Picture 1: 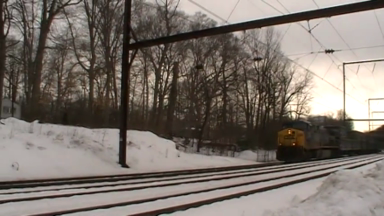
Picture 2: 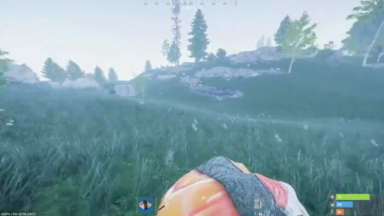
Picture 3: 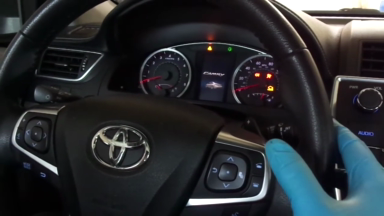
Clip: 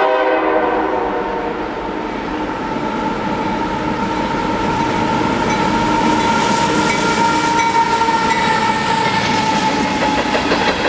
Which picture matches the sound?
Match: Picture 1